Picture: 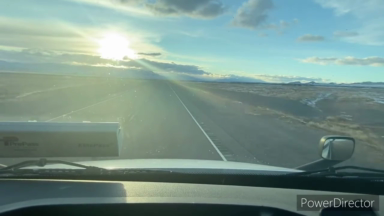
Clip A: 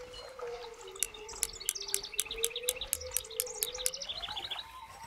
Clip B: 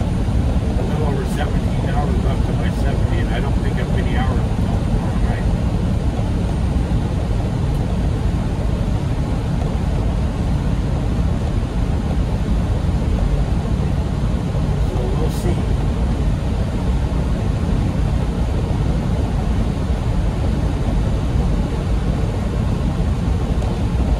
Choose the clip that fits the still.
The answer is B